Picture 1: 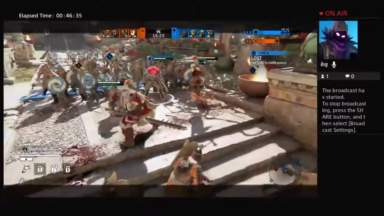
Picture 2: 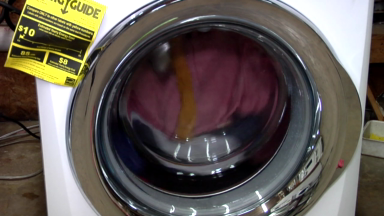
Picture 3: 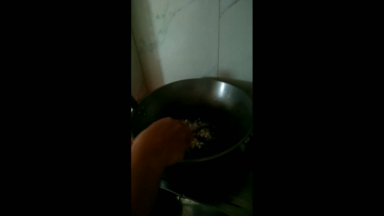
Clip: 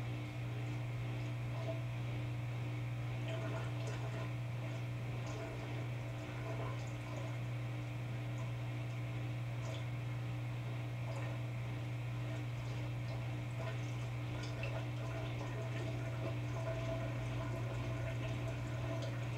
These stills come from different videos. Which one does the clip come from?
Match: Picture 2